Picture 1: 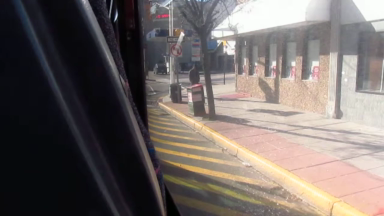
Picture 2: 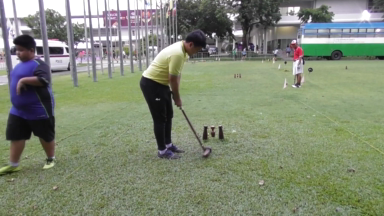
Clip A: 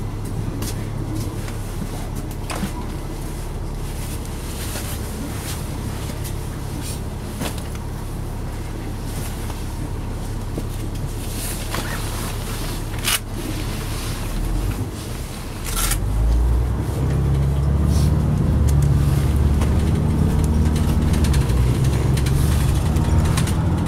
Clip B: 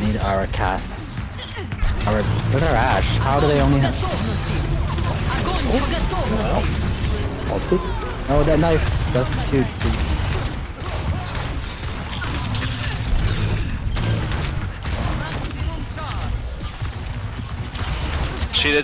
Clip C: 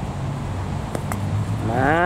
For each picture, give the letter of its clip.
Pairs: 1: A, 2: C